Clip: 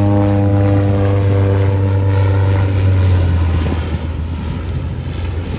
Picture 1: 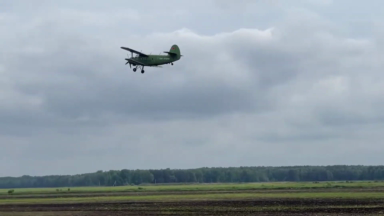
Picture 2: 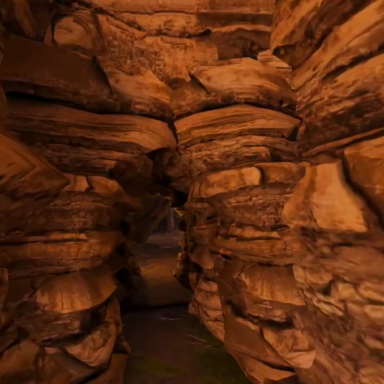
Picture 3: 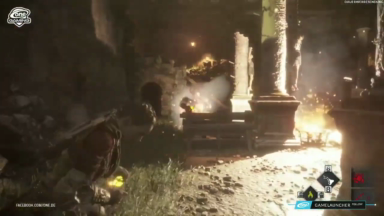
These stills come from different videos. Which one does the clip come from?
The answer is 1